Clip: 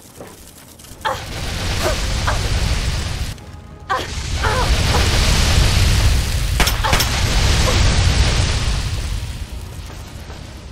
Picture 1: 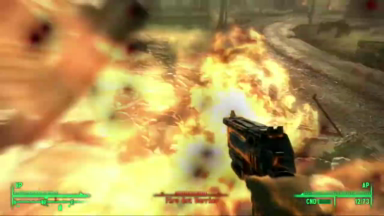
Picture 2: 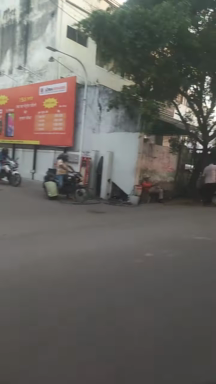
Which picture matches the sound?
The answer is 1